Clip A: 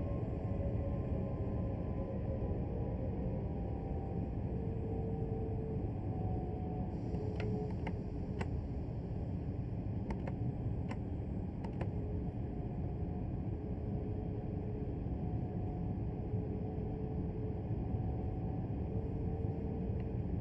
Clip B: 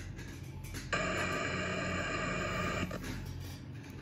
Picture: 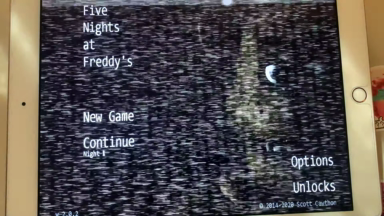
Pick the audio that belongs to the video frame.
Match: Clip B